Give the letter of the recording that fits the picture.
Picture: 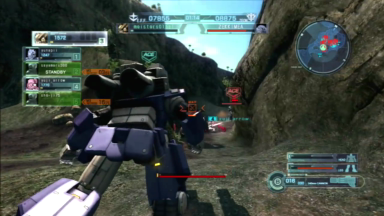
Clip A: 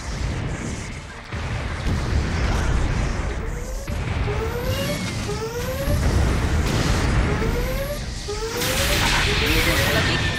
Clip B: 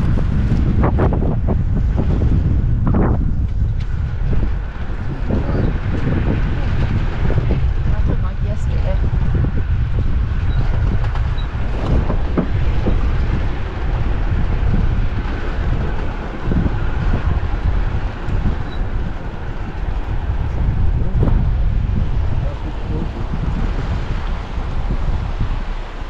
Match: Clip A